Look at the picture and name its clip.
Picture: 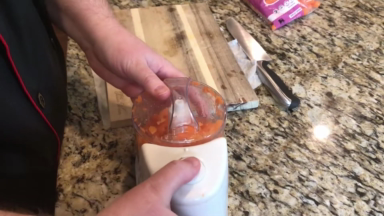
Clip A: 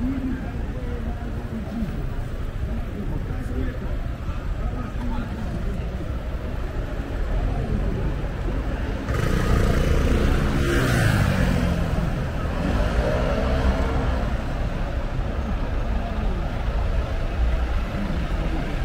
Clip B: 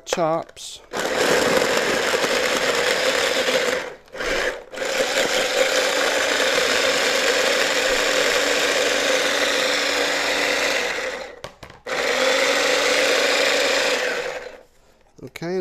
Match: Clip B